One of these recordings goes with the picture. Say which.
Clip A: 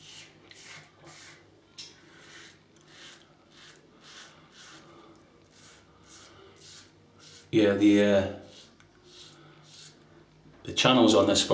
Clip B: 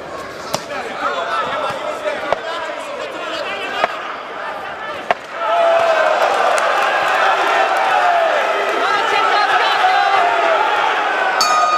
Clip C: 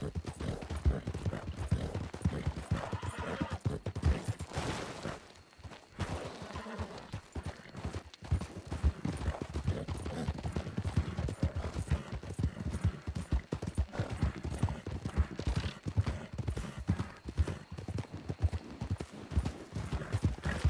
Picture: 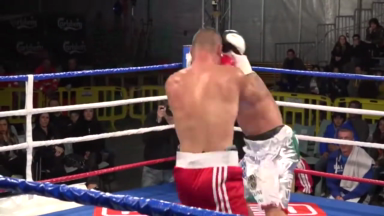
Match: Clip B